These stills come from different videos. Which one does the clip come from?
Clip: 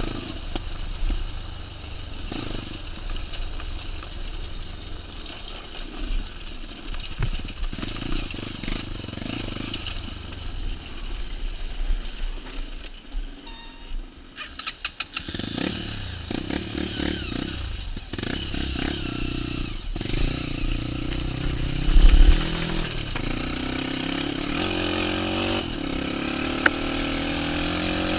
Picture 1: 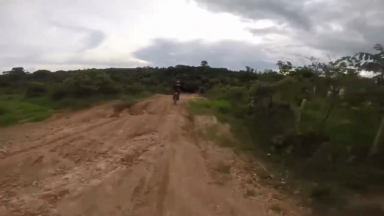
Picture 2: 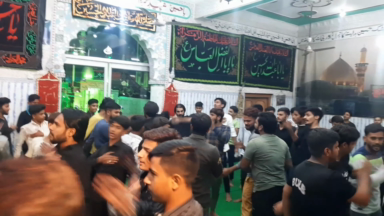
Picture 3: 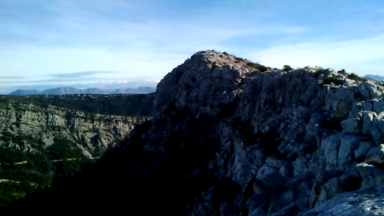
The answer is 1